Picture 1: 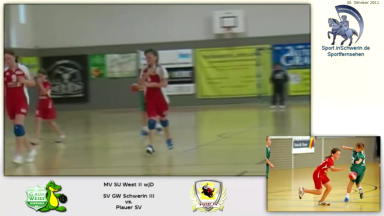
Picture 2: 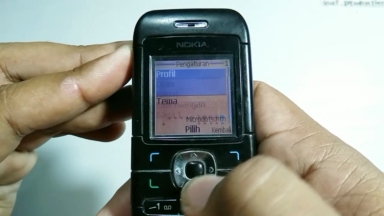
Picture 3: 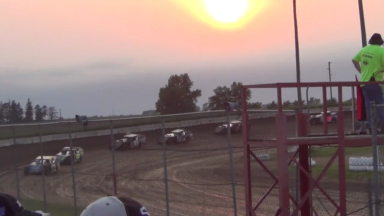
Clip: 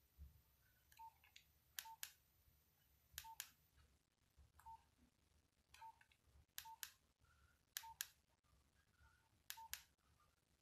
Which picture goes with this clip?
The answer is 2